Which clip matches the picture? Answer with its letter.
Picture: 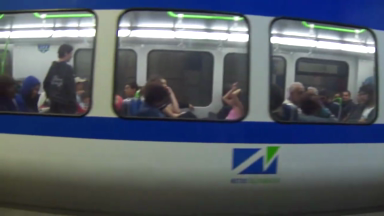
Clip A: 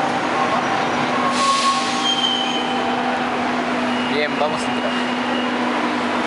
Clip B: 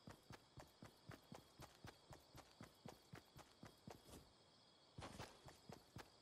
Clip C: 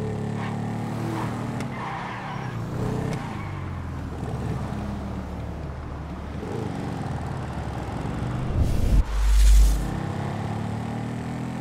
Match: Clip A